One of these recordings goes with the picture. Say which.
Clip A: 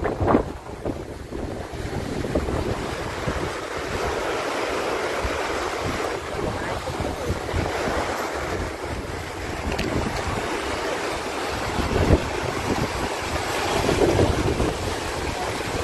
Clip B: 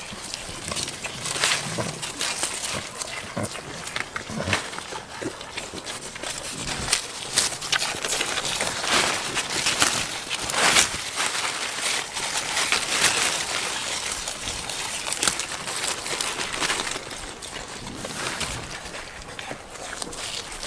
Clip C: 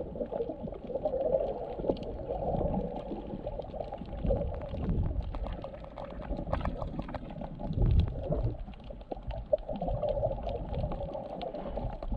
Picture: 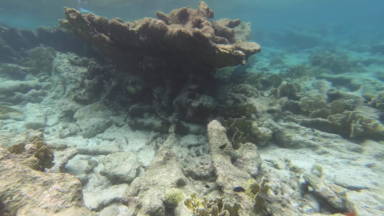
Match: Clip C